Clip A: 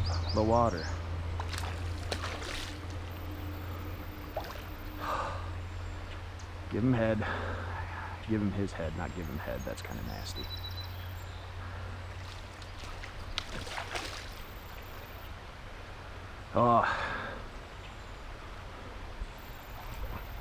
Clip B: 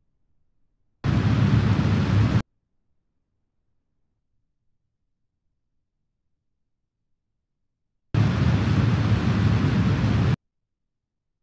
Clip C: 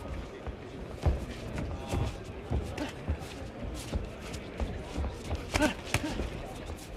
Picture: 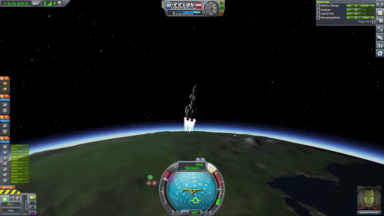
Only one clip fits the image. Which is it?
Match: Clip B